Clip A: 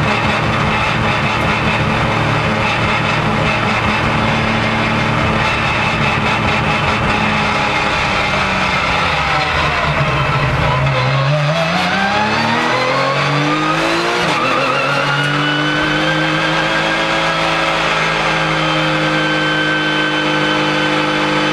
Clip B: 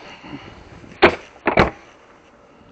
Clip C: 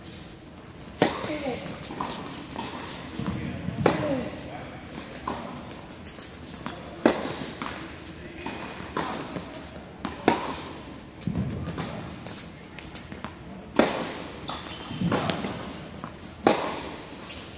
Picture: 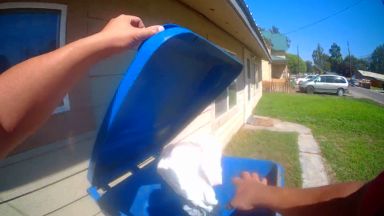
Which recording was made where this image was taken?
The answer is B